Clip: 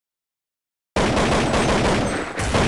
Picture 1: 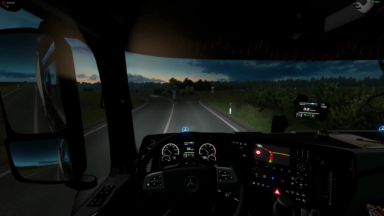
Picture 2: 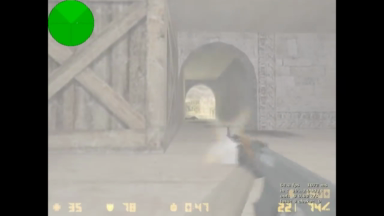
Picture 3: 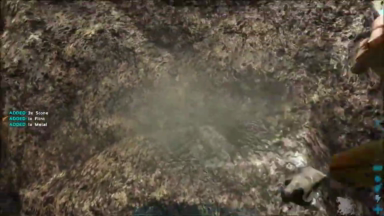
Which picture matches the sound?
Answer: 2